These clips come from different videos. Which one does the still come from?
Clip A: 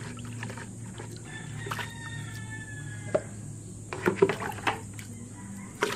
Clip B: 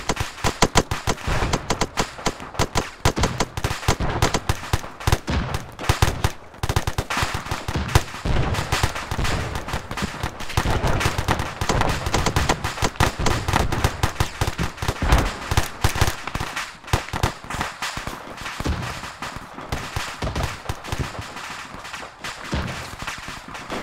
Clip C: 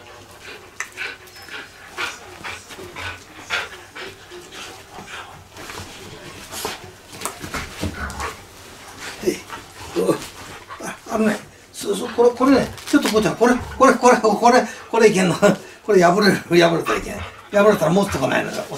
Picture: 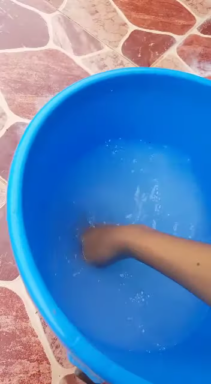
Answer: A